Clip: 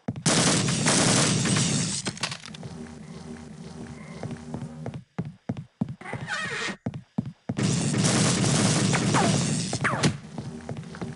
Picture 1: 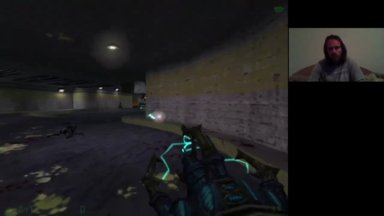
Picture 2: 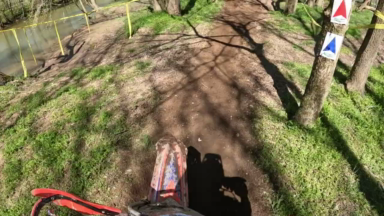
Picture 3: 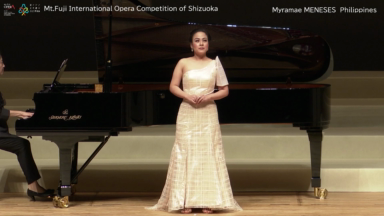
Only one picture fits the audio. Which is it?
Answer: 1